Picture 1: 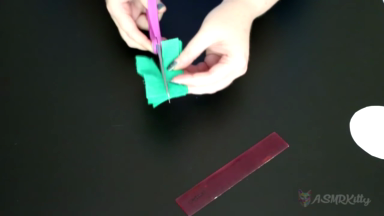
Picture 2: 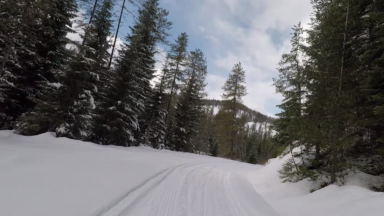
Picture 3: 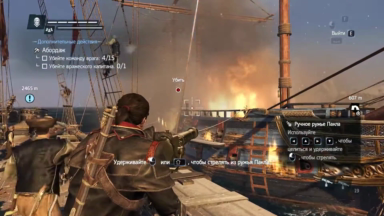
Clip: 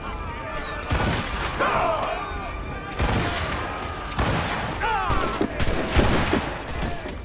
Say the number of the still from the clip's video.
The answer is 3